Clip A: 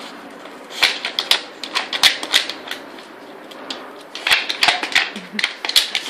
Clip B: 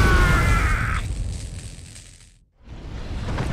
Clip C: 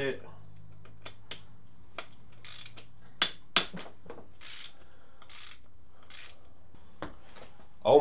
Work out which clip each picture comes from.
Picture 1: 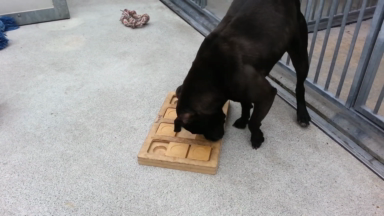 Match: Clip A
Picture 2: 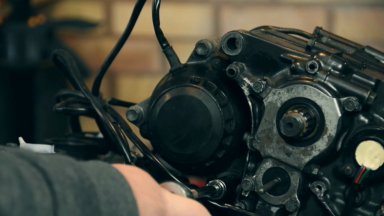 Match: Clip C